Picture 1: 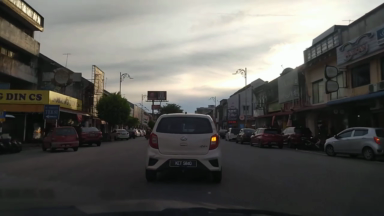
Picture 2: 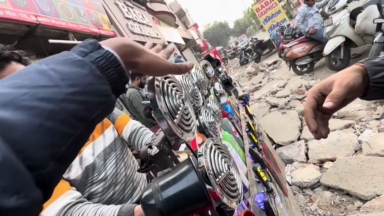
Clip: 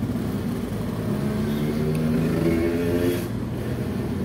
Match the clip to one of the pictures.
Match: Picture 1